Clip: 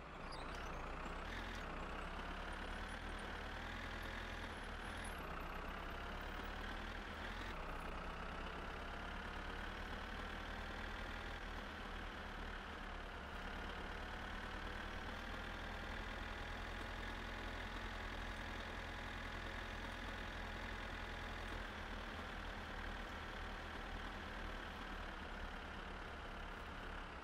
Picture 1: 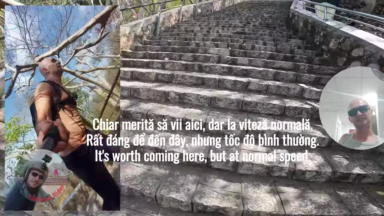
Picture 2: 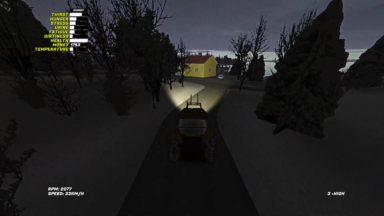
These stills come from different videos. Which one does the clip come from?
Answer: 2